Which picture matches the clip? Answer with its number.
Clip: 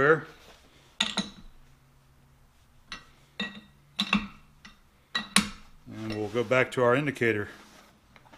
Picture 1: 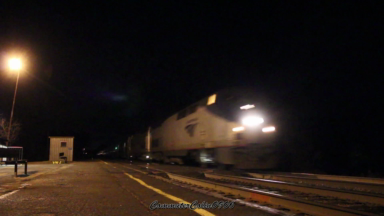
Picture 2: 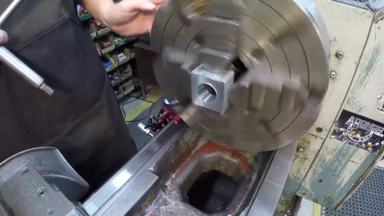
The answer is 2